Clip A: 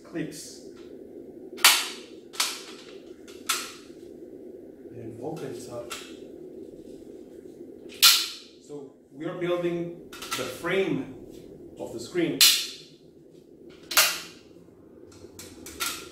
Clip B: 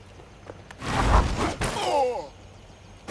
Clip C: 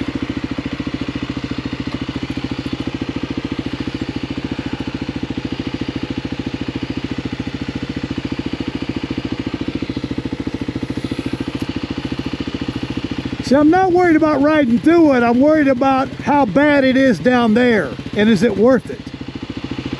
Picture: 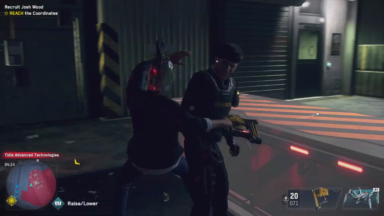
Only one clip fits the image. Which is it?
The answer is B